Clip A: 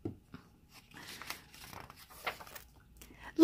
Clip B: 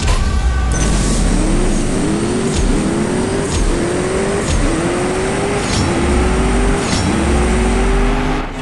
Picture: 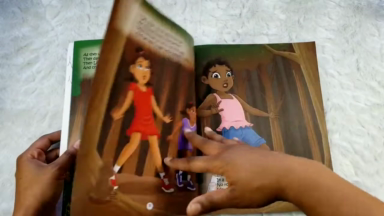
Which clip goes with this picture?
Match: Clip A